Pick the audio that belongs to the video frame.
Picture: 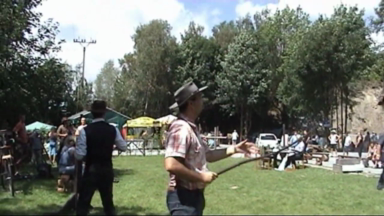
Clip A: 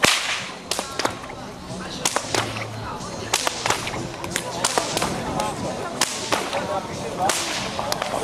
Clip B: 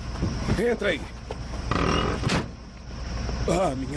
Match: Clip A